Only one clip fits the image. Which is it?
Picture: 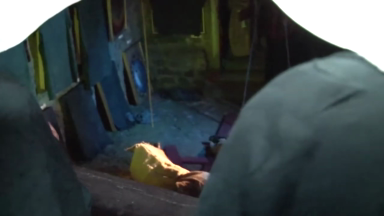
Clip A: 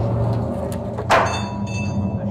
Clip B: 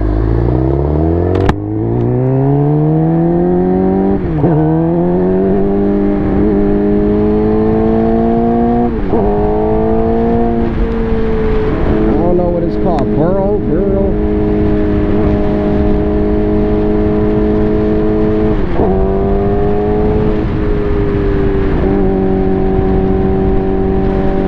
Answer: A